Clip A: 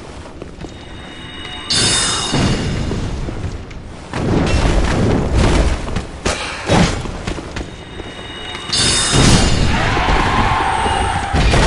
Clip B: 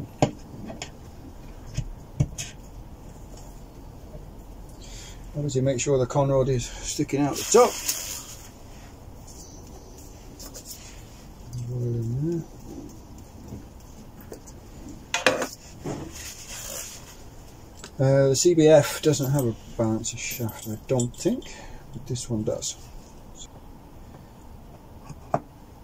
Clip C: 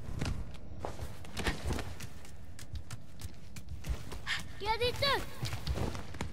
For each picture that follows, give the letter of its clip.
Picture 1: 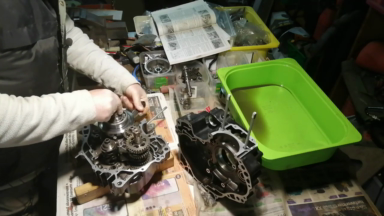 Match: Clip B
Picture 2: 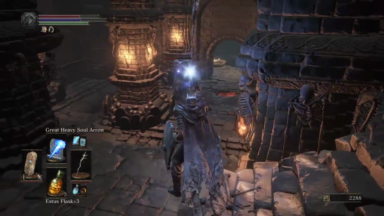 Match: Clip A